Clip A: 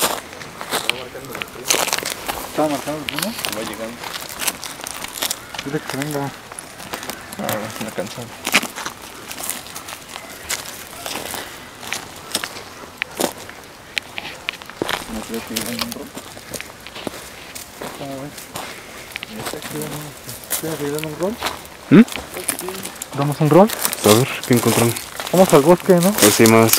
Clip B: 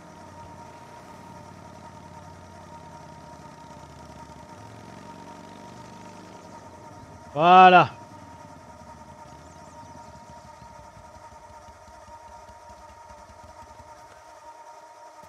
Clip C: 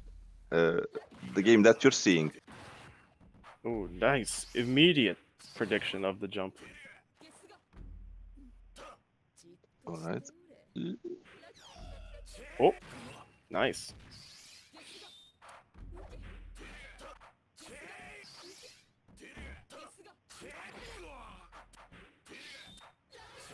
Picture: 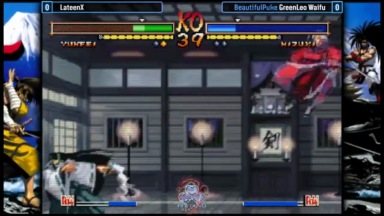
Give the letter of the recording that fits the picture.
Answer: C